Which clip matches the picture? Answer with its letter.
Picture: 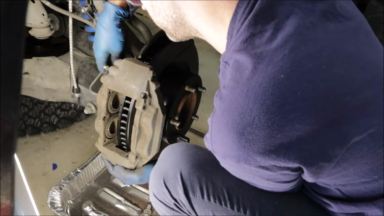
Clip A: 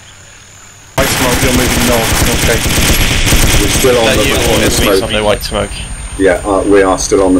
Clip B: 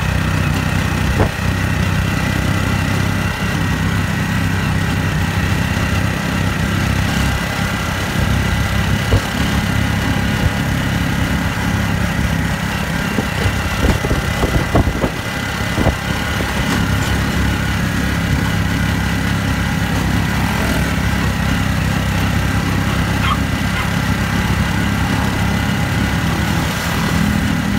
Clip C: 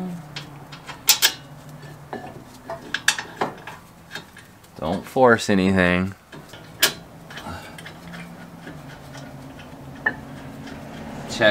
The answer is C